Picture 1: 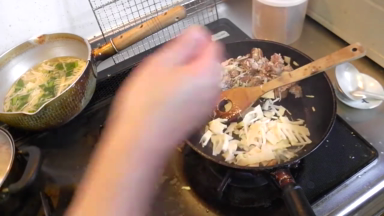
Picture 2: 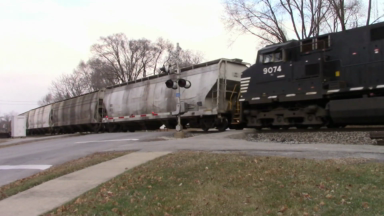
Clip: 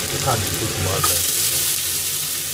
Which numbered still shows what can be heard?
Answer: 1